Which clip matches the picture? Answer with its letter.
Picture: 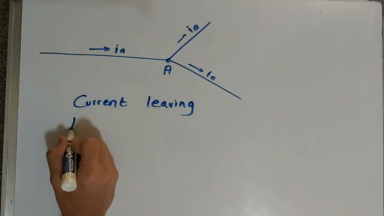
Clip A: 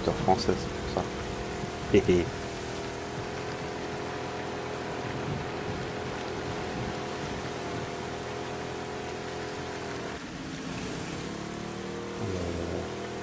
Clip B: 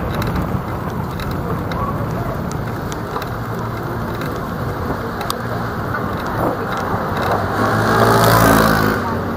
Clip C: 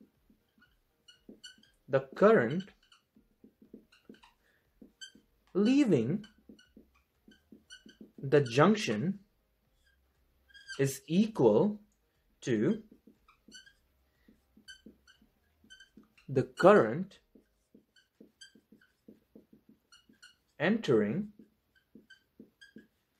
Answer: C